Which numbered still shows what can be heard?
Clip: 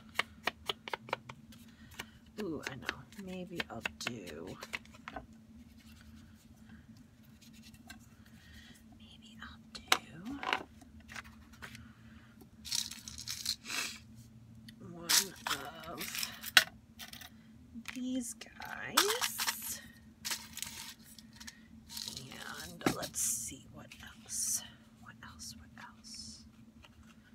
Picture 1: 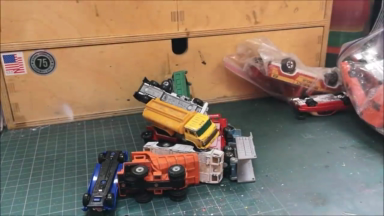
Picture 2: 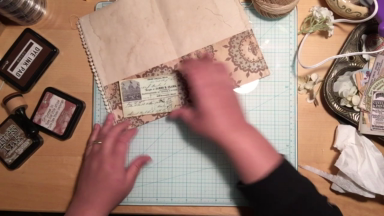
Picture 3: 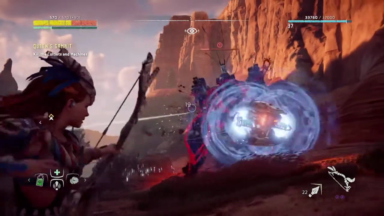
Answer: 2